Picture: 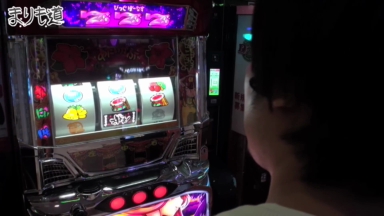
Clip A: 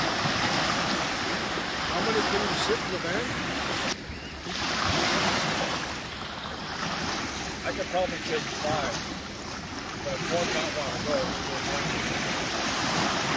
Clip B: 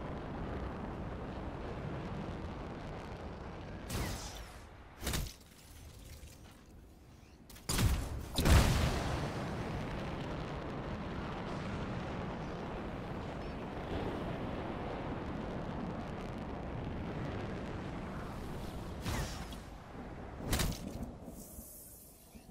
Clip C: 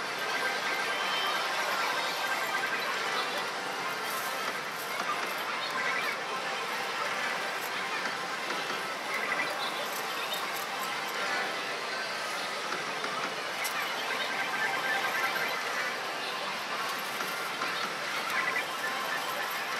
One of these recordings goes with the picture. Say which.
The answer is C